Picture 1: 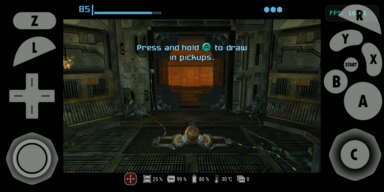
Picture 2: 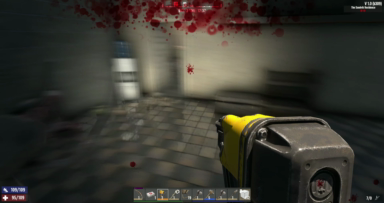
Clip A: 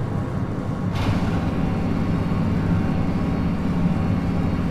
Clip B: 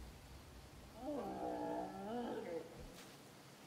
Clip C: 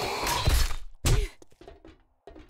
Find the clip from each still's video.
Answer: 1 A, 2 C